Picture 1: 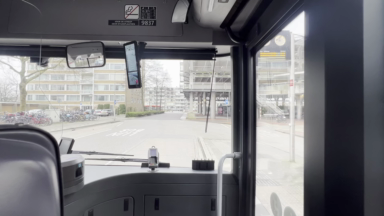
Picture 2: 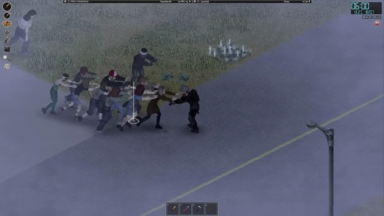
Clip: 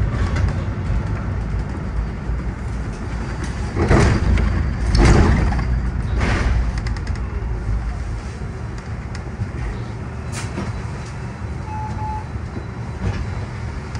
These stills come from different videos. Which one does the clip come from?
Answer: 1